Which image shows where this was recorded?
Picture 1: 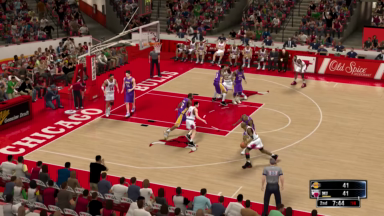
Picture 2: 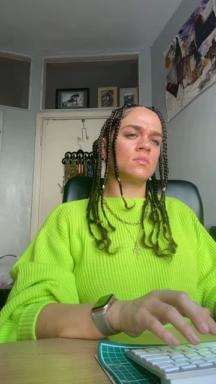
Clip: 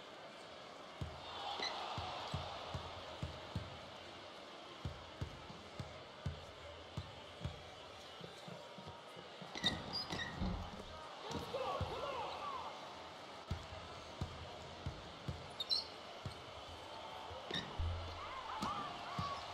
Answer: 1